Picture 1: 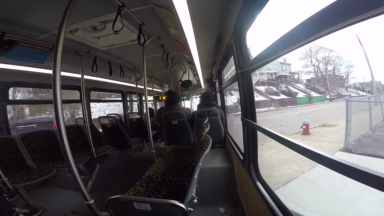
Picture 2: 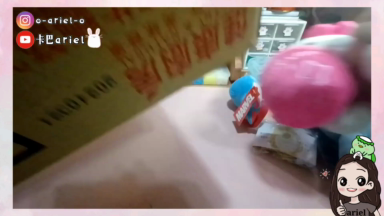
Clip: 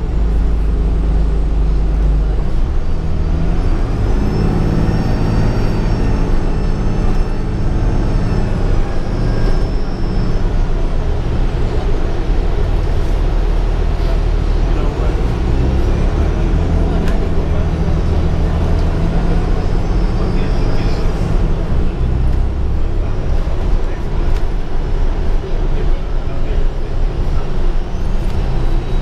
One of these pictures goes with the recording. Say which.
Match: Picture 1